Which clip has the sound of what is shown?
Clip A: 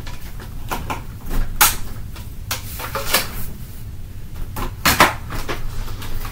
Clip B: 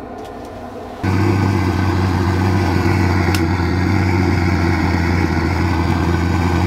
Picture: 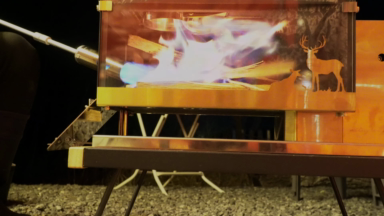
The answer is B